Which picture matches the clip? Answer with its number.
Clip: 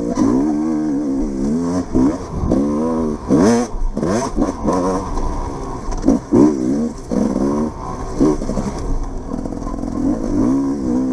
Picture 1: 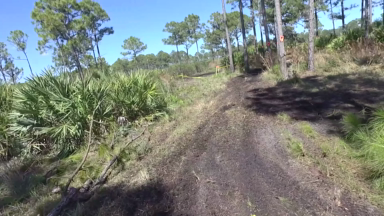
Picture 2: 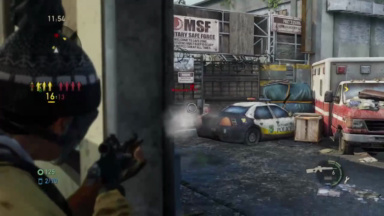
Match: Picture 1